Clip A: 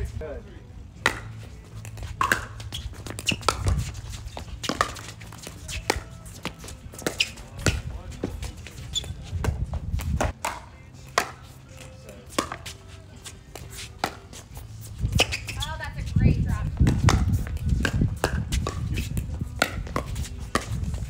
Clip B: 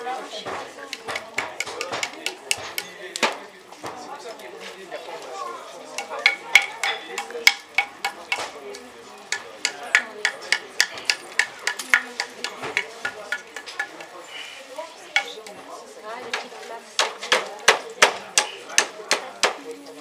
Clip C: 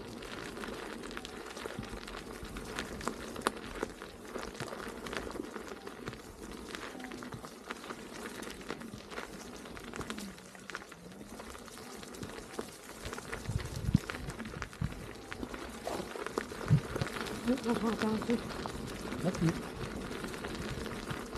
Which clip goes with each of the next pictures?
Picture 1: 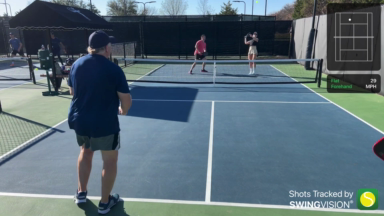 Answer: A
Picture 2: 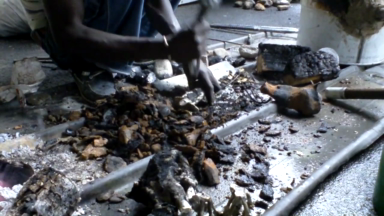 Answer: B